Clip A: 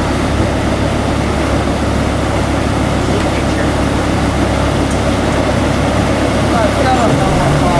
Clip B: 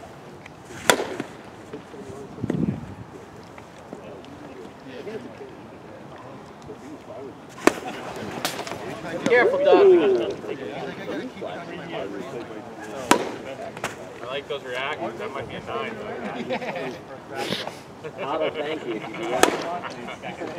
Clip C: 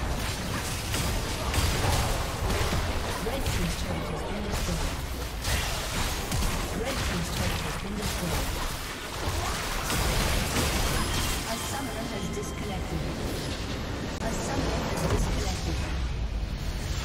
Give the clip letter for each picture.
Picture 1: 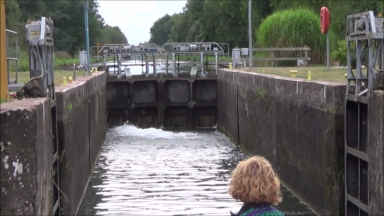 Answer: A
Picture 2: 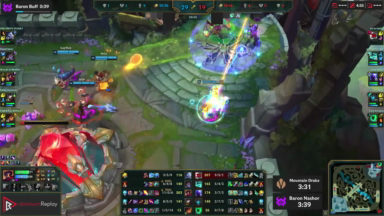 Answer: C